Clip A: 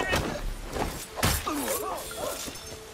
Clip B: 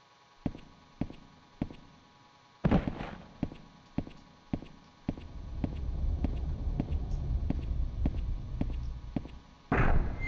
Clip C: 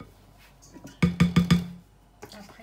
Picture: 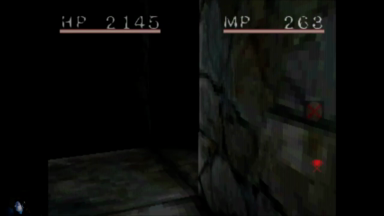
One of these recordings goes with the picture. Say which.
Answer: B